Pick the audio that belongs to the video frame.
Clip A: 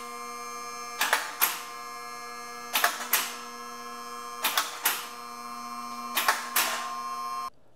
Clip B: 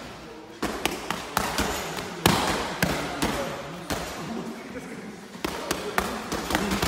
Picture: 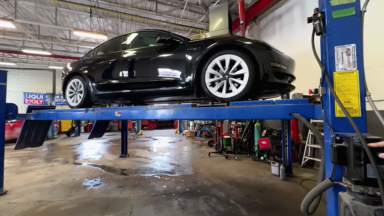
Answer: A